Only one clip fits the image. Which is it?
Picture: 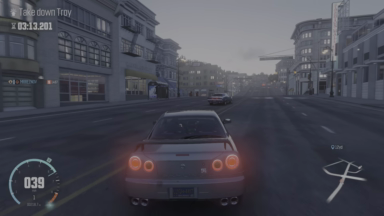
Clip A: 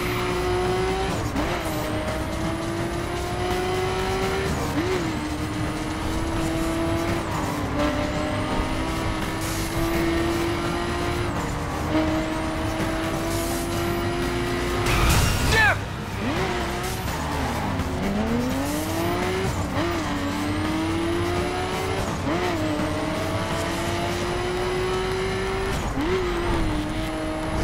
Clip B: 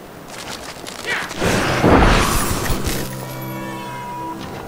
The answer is A